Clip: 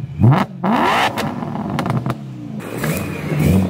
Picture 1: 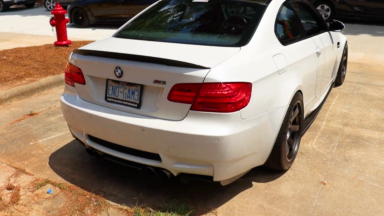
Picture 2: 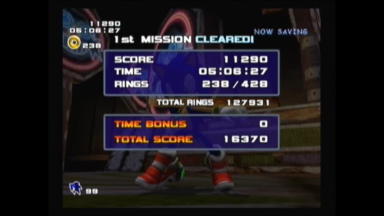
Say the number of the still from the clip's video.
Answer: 1